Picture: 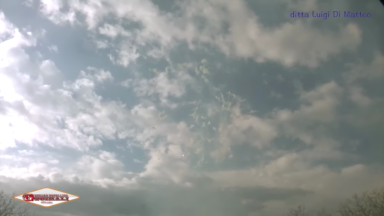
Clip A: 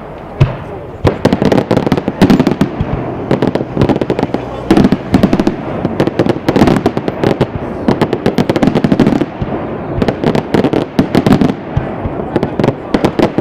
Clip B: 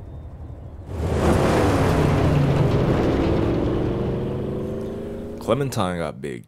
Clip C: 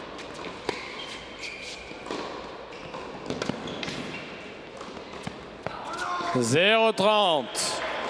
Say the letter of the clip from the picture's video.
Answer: A